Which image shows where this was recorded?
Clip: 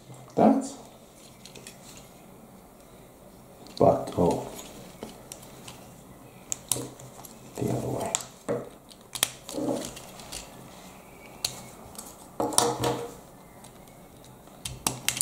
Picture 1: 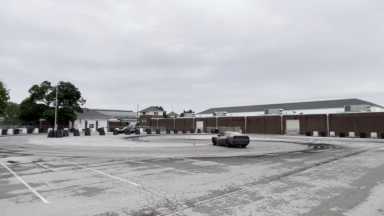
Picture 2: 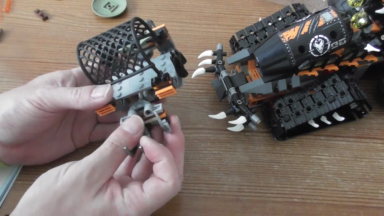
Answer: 2